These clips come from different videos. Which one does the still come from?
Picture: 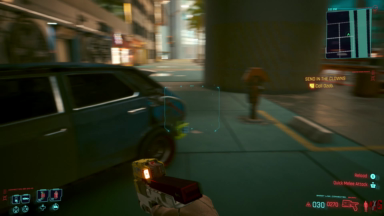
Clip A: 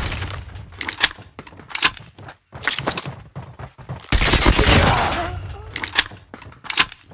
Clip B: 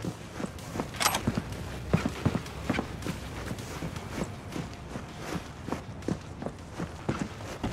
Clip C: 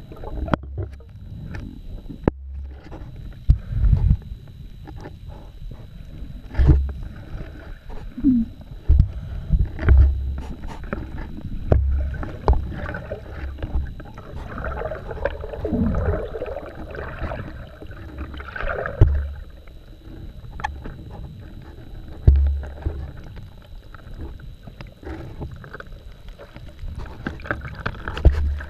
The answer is B